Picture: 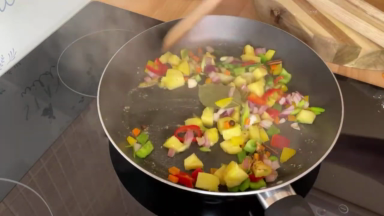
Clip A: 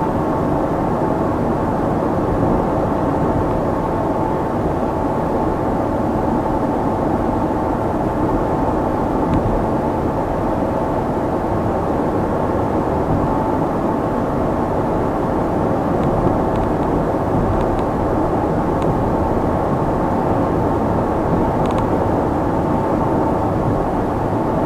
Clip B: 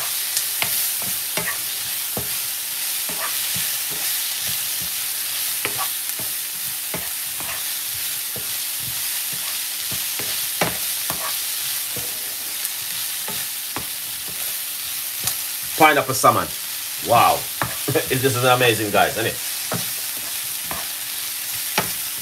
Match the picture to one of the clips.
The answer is B